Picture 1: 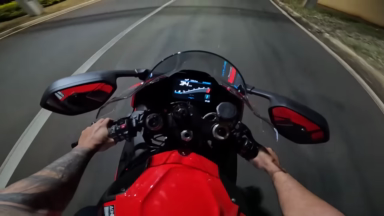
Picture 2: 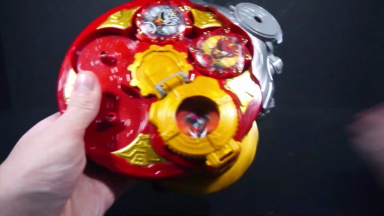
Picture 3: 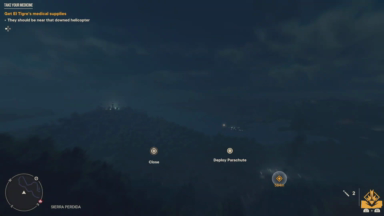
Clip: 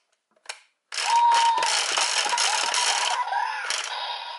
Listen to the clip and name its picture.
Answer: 2